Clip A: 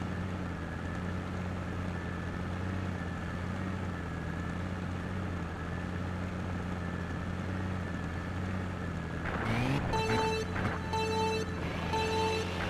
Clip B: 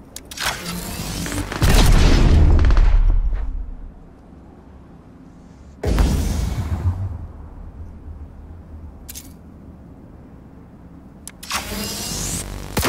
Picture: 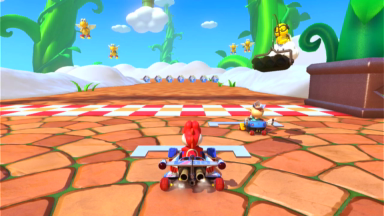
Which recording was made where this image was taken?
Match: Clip A